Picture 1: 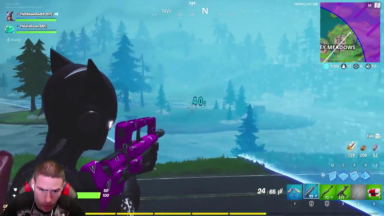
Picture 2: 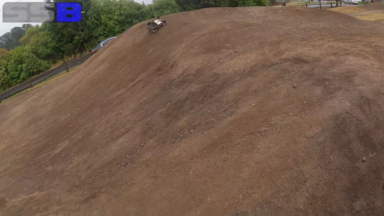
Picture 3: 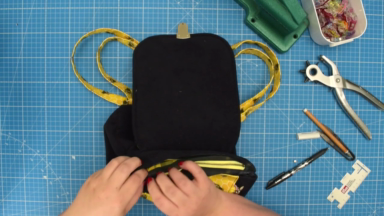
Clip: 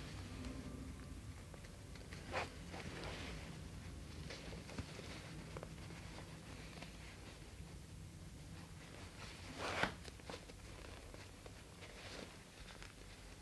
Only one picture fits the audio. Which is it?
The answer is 3